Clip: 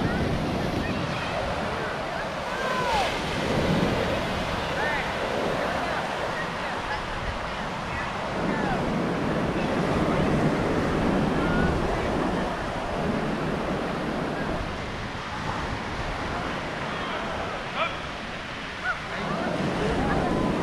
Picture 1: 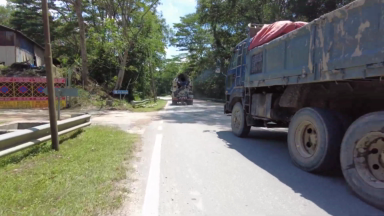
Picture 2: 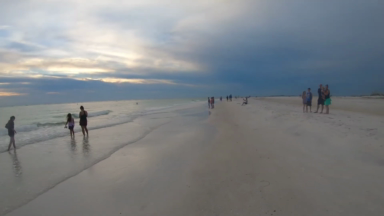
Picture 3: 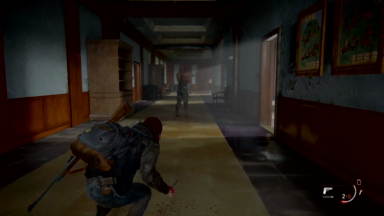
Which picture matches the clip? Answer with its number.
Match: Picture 2